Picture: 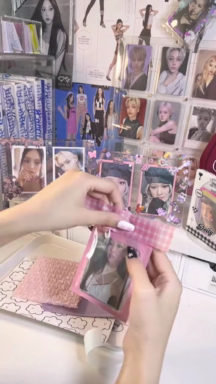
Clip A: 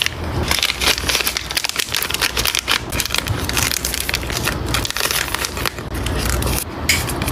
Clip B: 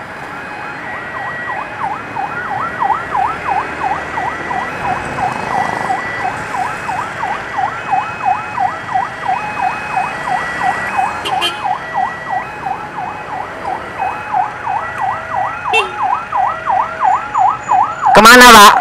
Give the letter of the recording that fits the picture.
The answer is A